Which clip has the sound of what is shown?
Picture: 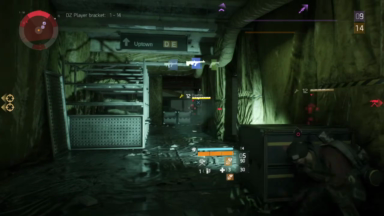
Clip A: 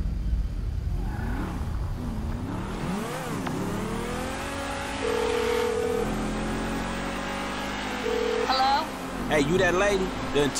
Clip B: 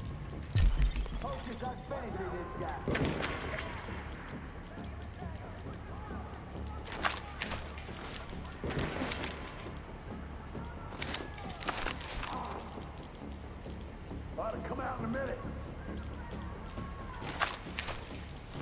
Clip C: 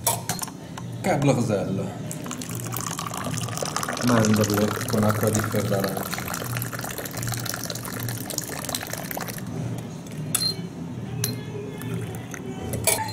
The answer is B